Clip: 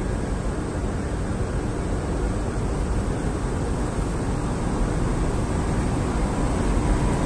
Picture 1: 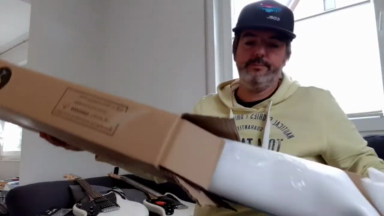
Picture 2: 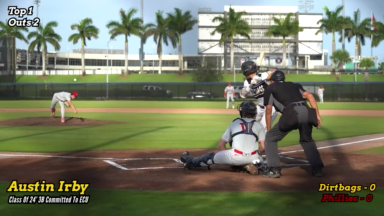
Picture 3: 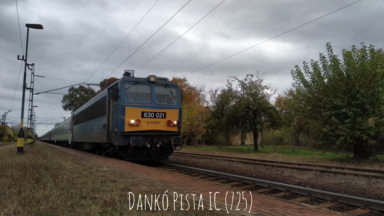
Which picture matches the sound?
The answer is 3